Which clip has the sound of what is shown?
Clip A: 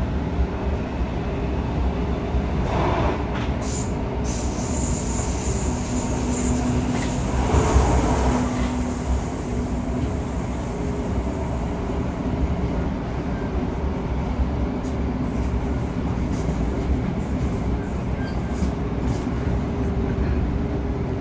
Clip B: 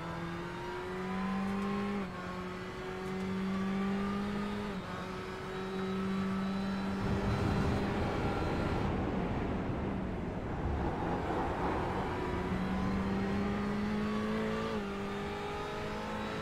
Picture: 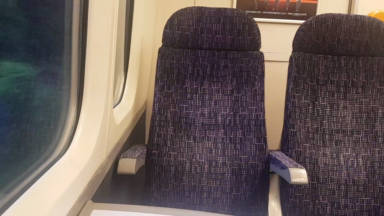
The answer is A